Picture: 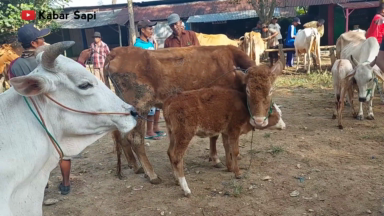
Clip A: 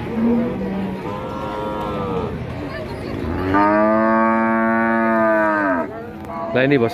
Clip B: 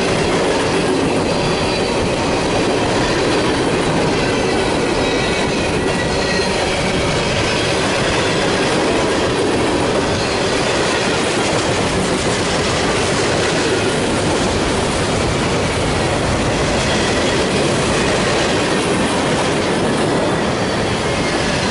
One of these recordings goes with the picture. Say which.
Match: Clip A